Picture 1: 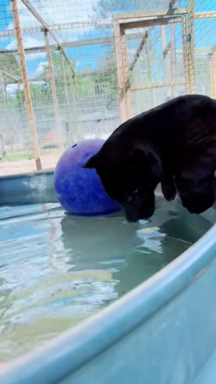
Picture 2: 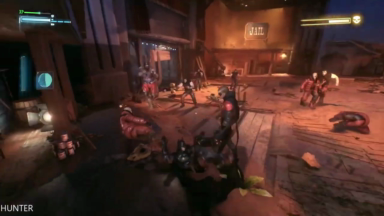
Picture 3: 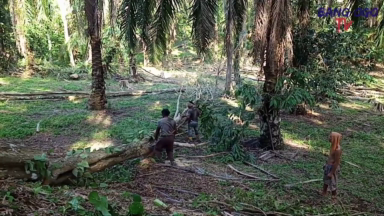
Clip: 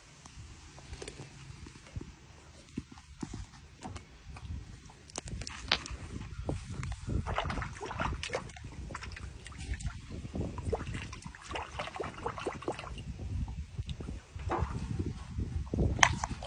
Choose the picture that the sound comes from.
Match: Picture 1